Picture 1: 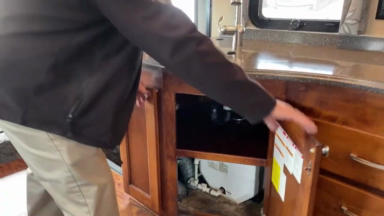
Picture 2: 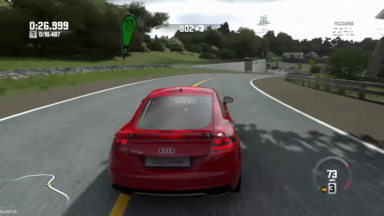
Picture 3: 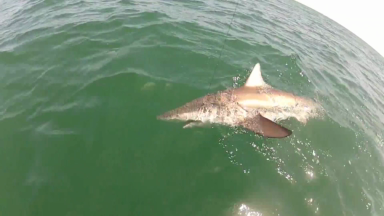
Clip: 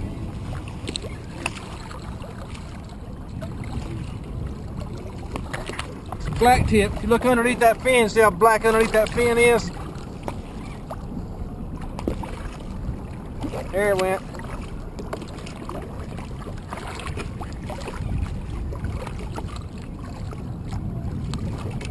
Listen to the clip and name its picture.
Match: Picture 3